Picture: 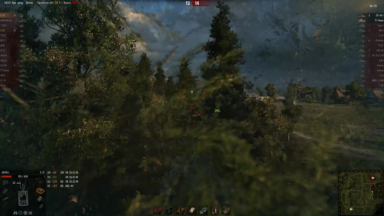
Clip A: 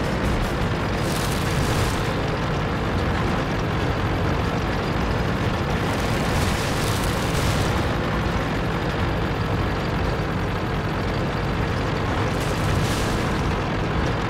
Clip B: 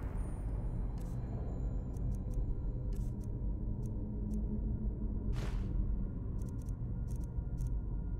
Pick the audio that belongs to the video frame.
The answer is A